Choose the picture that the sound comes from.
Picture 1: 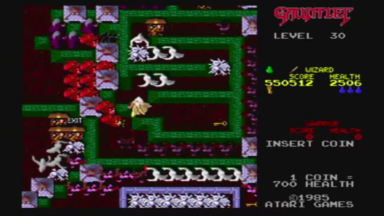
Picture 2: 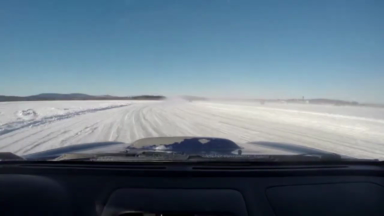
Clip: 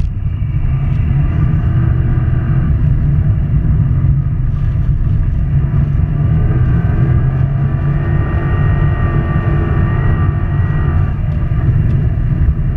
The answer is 2